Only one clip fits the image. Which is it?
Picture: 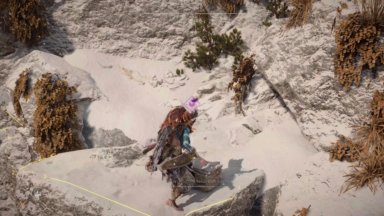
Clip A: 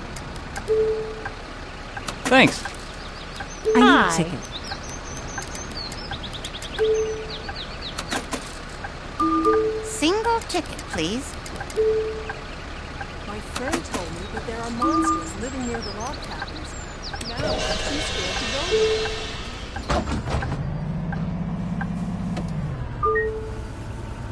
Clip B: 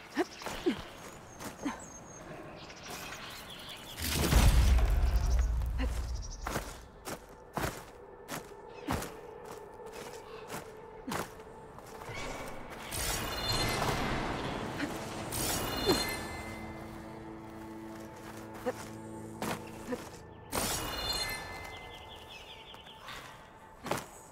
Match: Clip B